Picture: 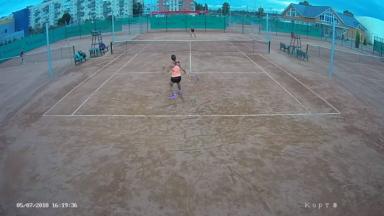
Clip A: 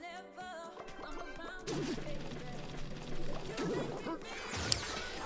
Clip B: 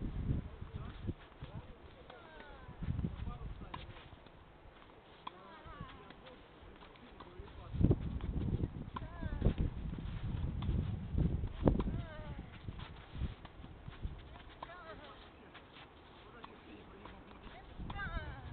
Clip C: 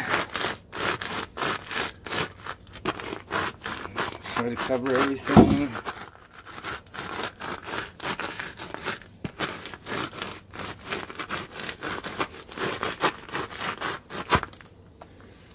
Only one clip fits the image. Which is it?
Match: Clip B